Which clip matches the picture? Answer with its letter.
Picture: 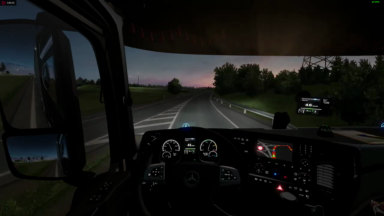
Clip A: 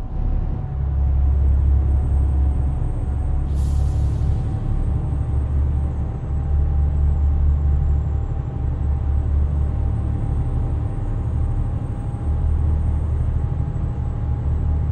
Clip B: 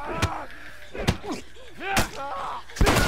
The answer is A